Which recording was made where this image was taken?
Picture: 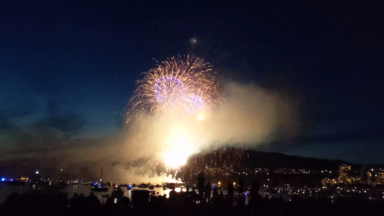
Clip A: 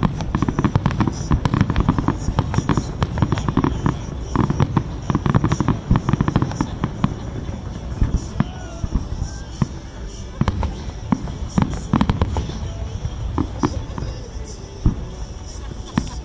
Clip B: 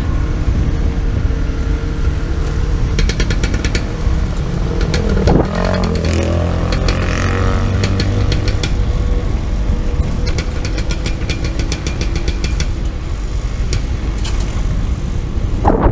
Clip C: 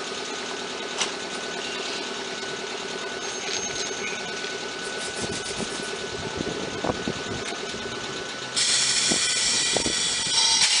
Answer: A